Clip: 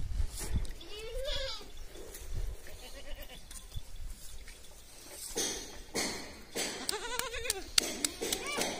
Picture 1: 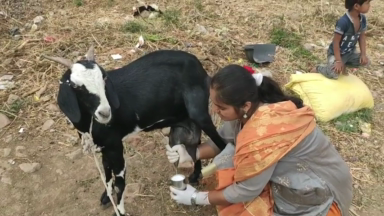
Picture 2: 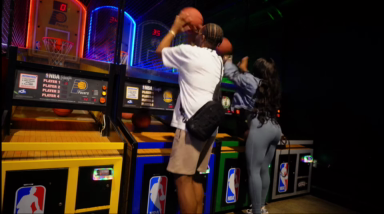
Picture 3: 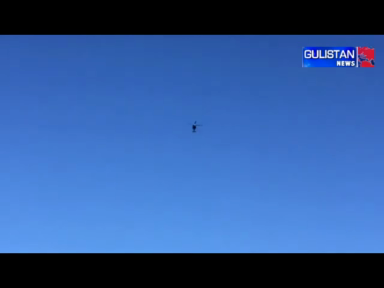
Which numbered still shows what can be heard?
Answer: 1